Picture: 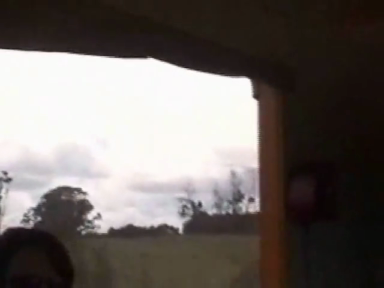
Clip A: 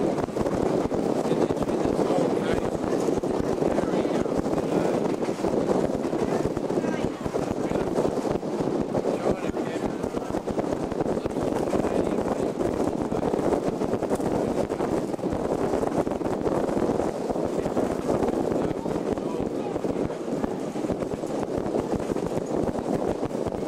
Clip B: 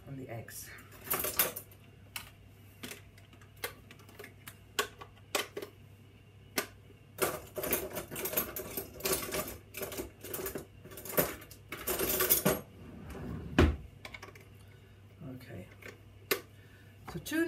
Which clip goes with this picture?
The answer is A